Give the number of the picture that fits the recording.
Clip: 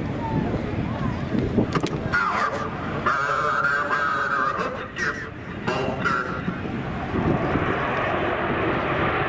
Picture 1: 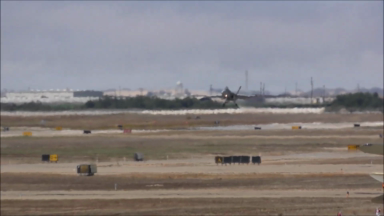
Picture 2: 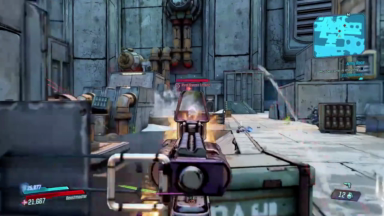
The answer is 1